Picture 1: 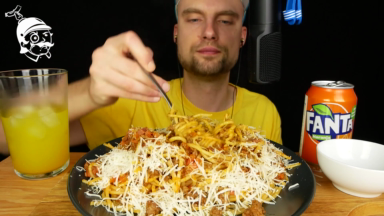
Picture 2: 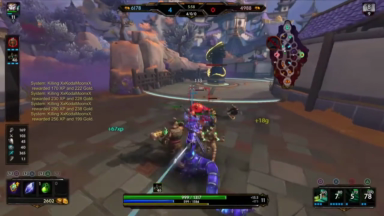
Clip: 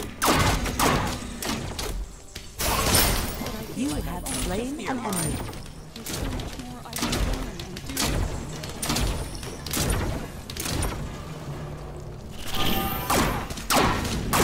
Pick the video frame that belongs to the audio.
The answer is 2